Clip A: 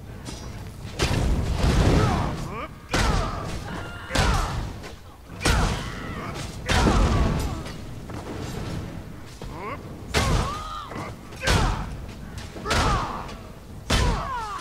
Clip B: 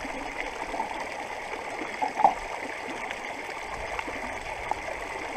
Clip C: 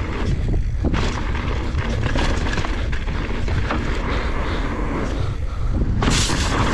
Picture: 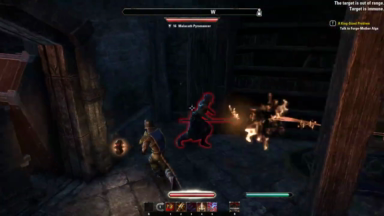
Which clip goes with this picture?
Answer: A